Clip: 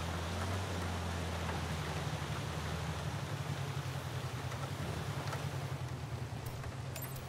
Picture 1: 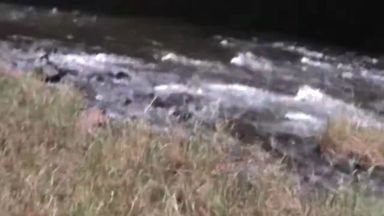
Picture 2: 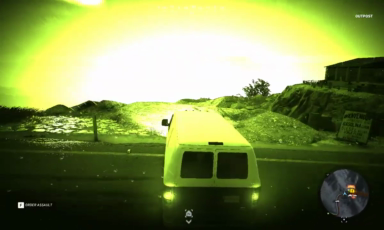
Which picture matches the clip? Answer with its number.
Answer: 2